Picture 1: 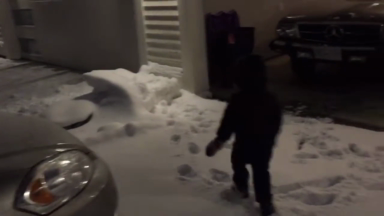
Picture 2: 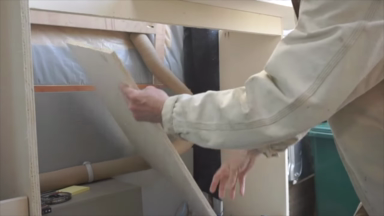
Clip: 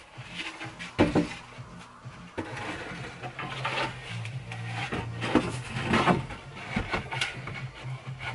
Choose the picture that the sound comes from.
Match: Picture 2